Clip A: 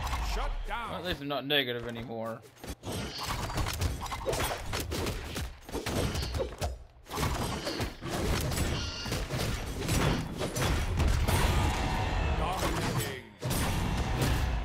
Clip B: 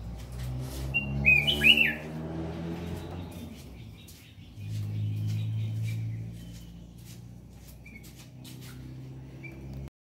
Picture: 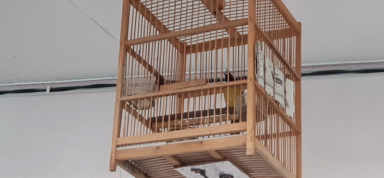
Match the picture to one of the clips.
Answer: B